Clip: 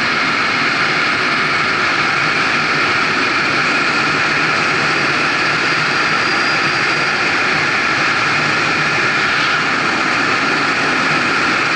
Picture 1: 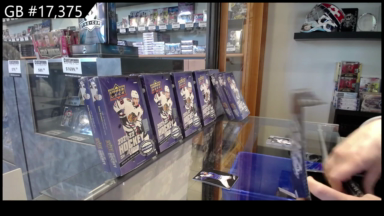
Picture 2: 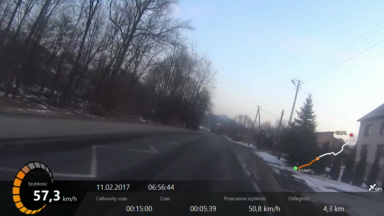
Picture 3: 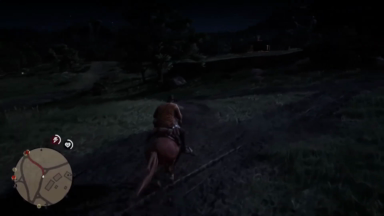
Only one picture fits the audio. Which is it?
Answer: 2